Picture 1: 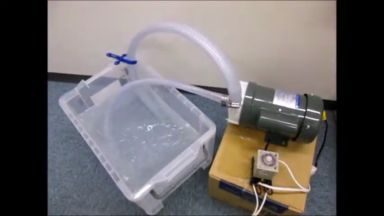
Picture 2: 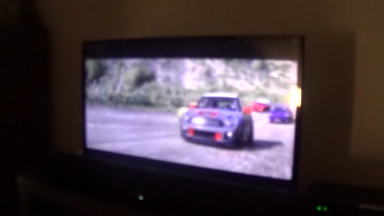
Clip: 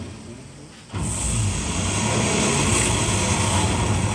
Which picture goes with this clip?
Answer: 2